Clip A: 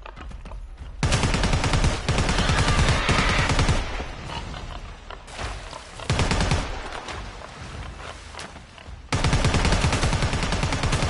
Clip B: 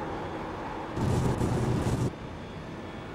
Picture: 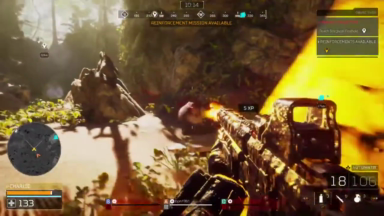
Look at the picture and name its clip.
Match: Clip A